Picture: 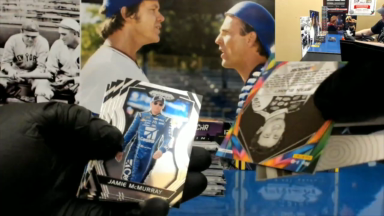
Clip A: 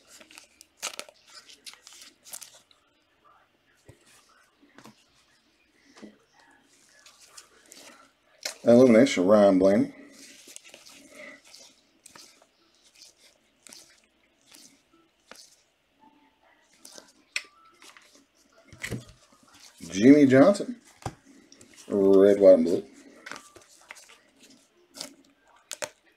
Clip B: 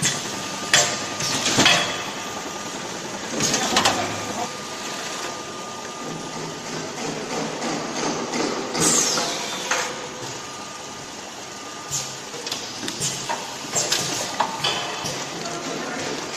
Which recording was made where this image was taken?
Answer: A